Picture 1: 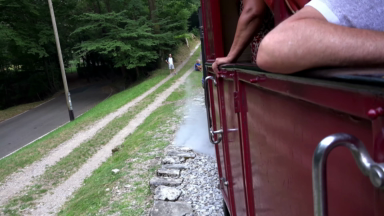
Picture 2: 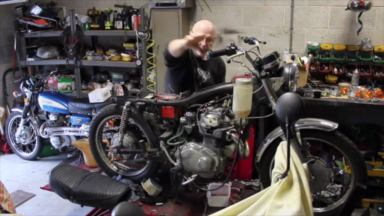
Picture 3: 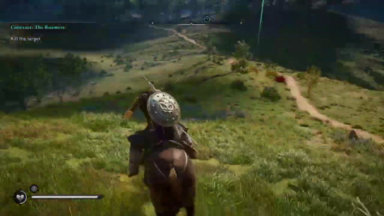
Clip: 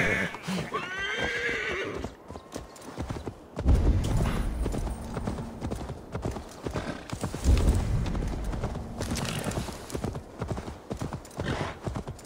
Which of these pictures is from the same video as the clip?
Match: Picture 3